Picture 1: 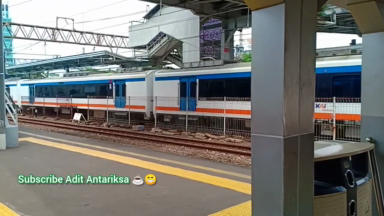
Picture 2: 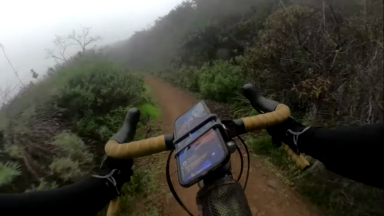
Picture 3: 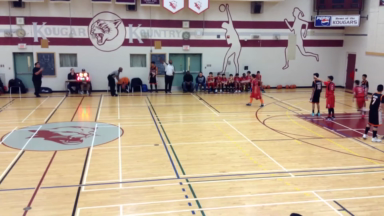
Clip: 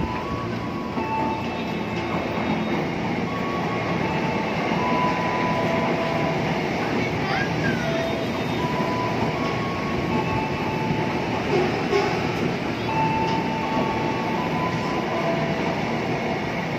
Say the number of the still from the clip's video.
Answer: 1